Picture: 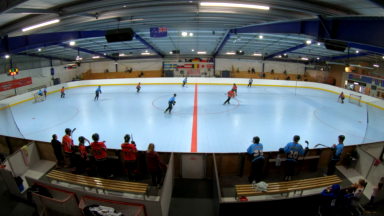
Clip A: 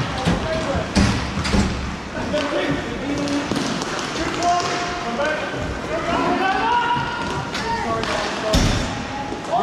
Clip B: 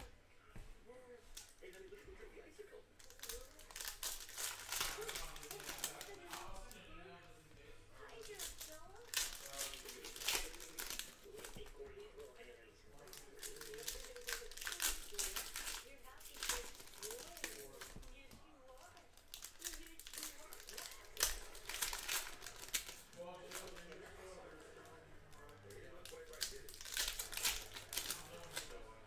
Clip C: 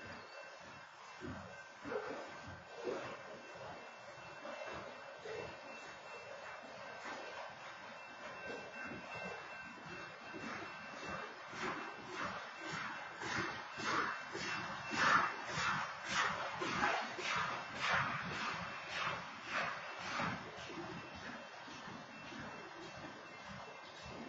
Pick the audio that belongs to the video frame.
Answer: A